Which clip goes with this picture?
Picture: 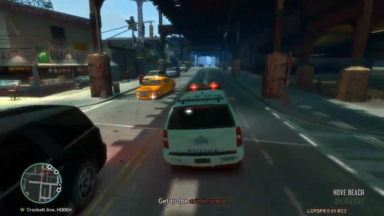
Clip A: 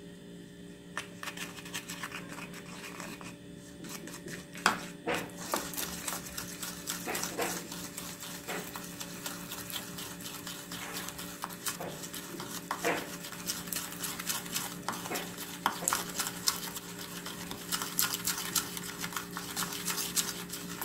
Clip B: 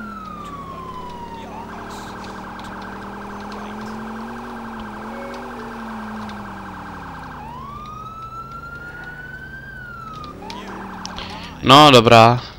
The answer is B